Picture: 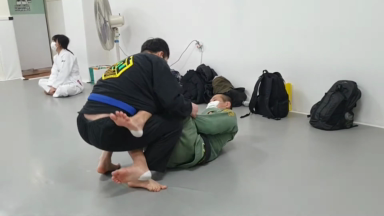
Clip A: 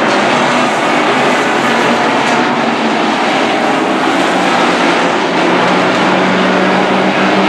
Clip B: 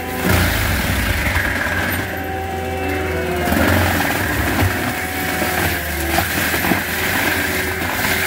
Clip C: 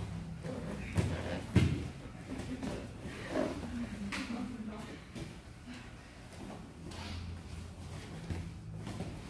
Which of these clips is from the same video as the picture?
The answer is C